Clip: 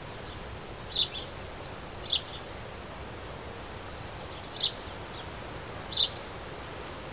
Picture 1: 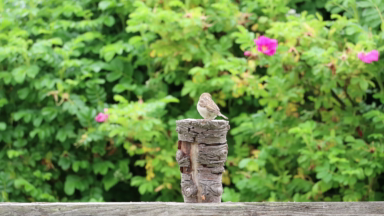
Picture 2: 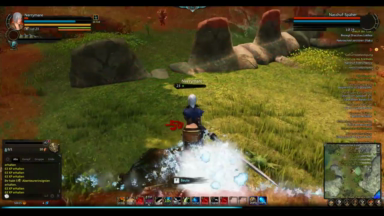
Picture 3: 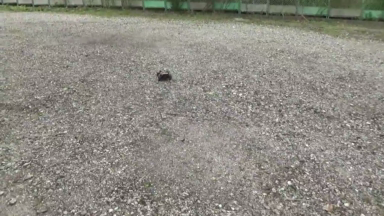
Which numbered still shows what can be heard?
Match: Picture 1